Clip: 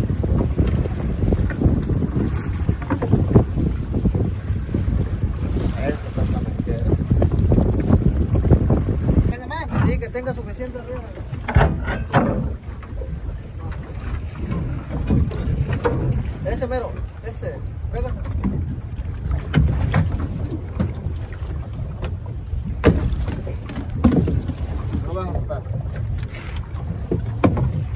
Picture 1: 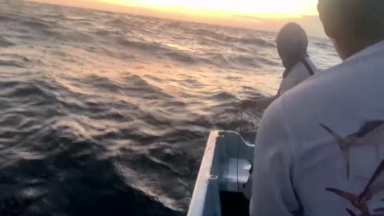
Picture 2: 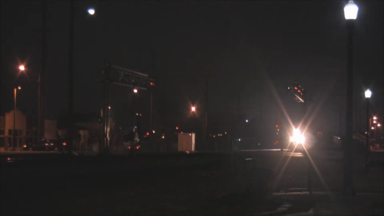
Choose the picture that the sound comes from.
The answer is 1